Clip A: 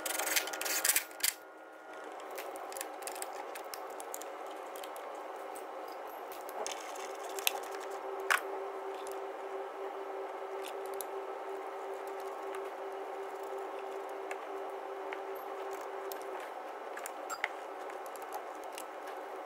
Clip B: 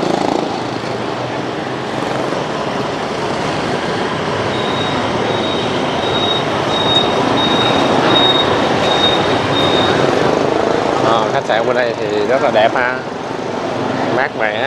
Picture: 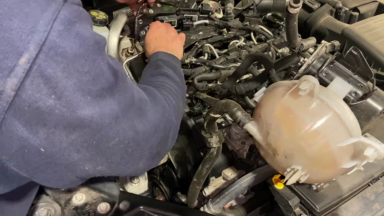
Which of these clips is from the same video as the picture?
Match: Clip A